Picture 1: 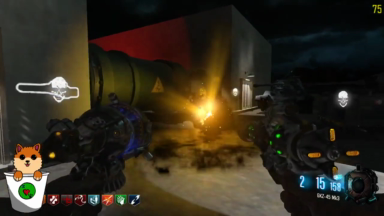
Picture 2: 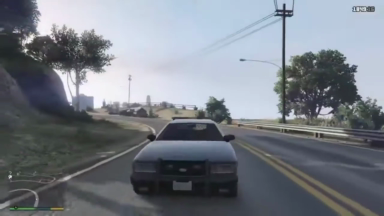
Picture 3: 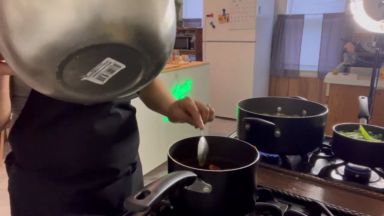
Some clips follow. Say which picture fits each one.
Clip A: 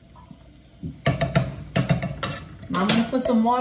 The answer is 3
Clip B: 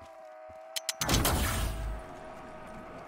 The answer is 1